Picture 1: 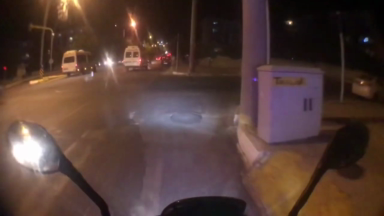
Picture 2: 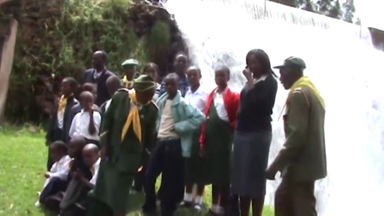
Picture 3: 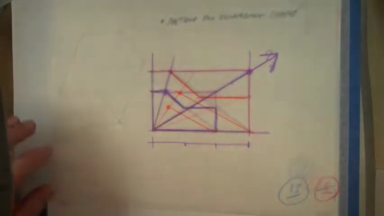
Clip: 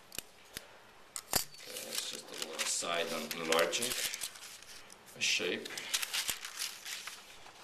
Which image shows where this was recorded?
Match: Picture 3